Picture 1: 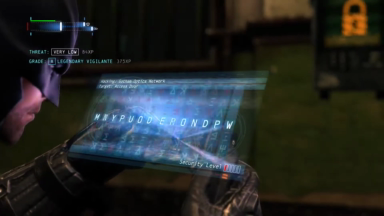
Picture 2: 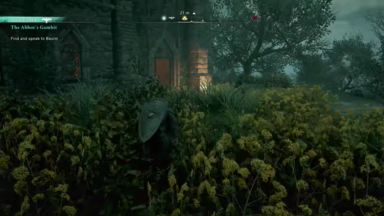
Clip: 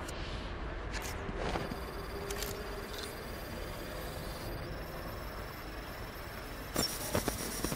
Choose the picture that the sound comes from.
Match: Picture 1